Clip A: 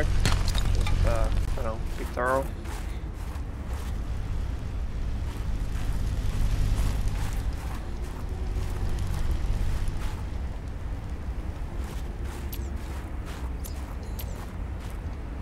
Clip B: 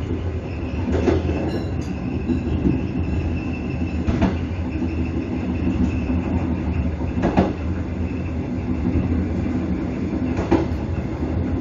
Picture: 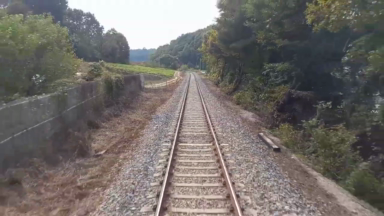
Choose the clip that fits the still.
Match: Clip B